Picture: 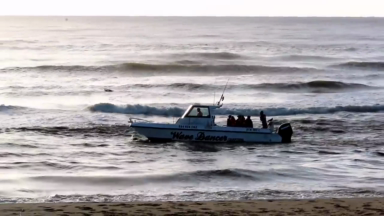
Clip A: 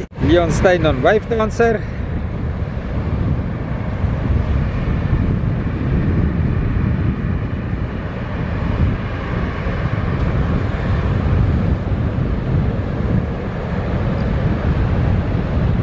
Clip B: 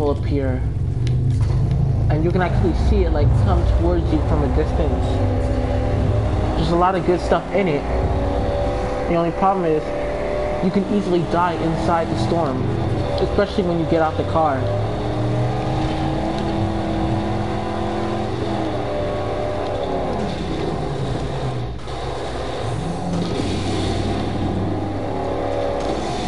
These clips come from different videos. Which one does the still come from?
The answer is A